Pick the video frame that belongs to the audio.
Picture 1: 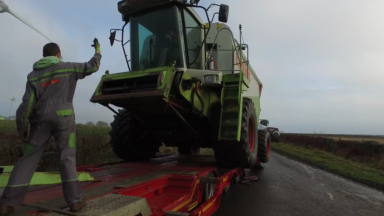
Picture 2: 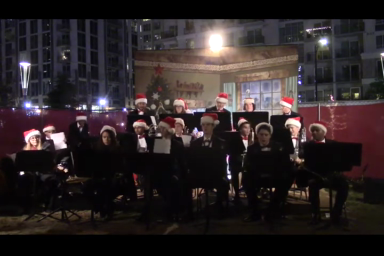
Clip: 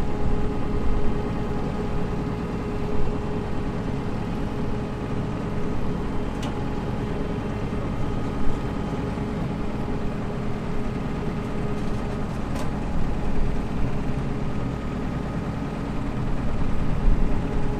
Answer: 1